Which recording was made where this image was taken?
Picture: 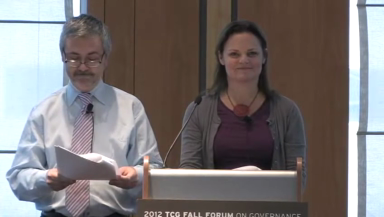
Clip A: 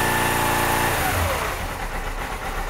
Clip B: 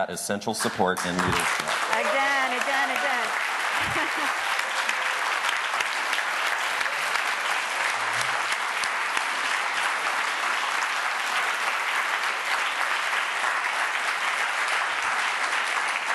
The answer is B